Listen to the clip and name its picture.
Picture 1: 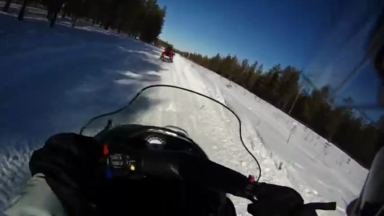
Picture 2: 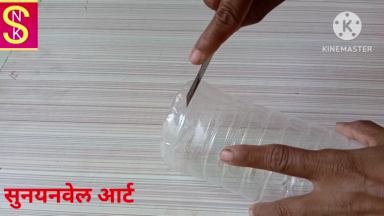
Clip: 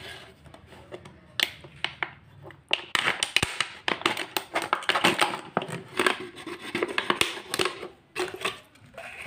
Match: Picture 2